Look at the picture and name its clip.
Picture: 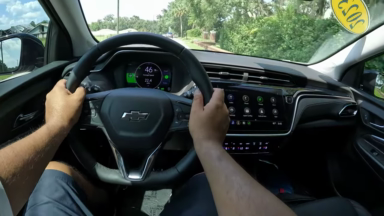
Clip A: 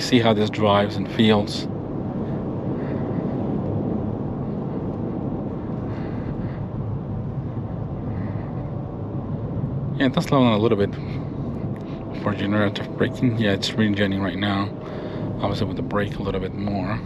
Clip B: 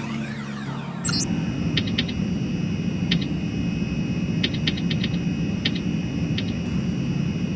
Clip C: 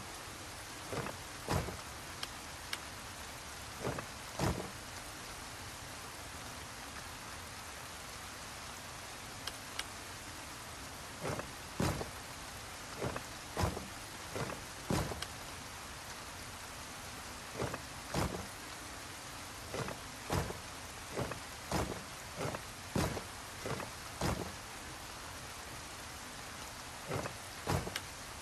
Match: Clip A